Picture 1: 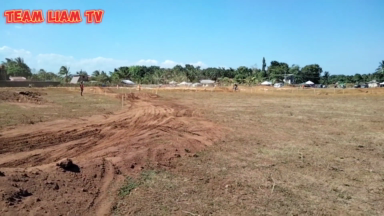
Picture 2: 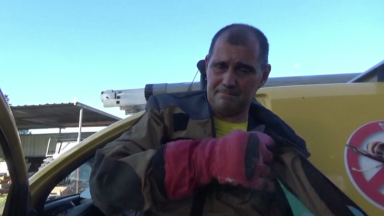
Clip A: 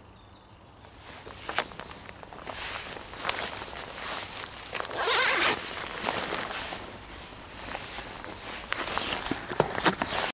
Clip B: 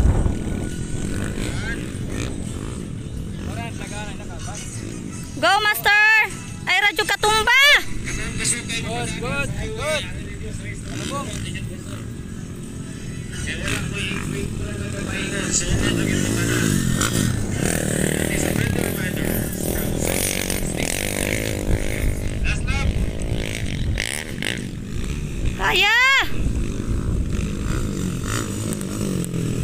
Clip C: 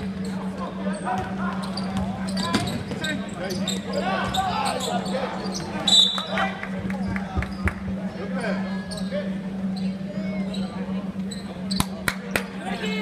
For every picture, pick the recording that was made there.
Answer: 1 B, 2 A